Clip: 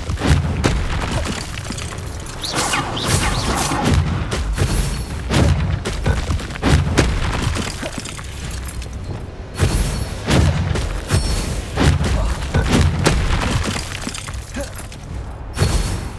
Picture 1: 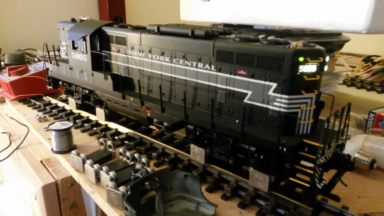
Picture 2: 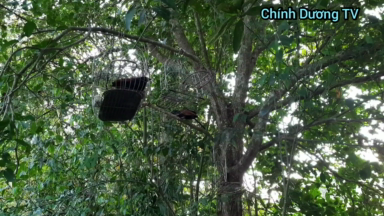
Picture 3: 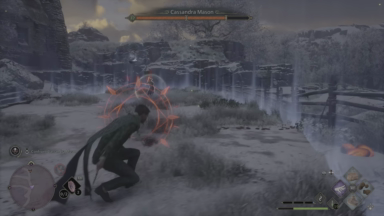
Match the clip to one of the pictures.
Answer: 3